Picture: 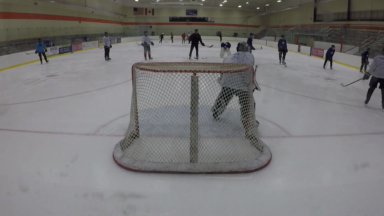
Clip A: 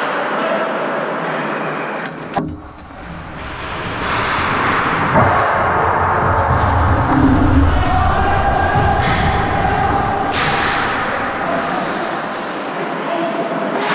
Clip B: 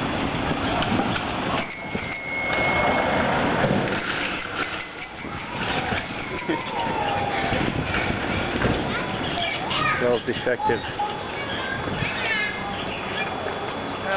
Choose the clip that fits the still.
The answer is A